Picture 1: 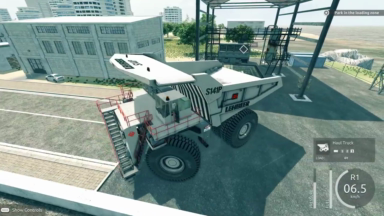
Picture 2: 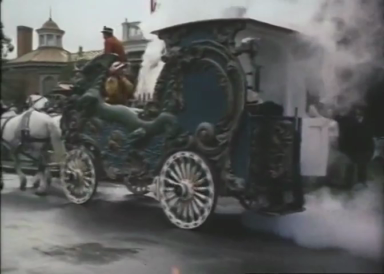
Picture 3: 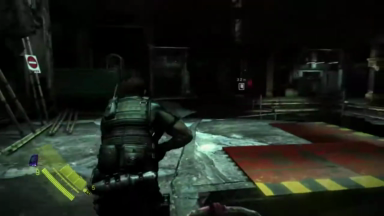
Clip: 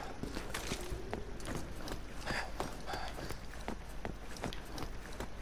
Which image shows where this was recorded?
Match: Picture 3